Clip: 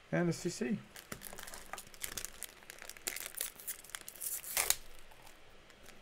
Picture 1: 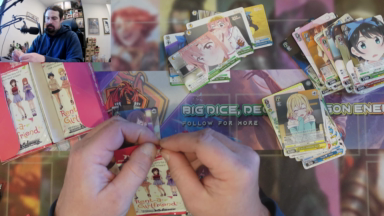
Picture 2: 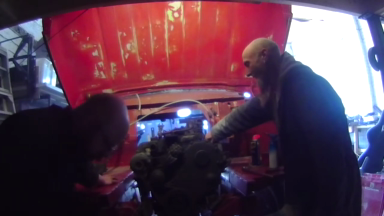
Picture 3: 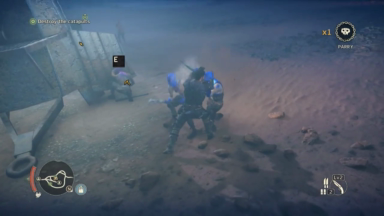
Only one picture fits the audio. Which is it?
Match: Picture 1